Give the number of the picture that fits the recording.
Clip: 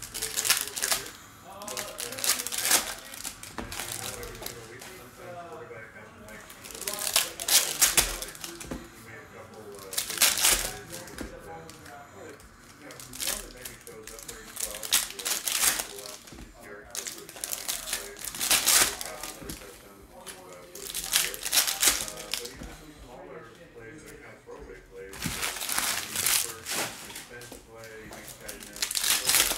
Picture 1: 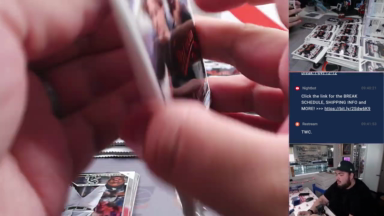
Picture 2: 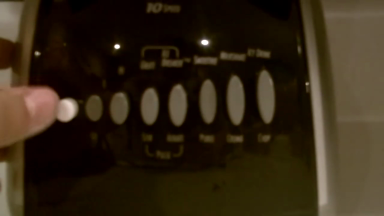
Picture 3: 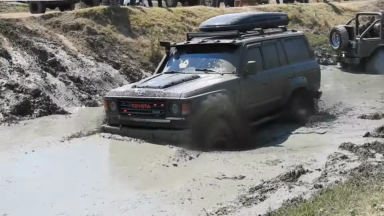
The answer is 1